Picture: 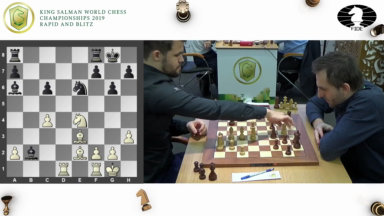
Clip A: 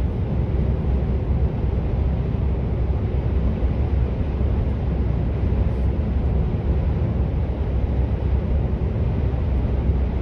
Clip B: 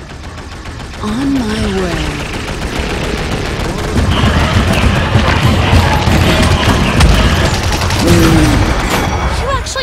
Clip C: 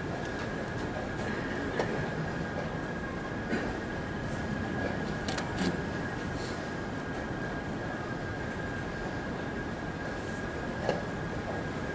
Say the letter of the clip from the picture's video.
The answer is C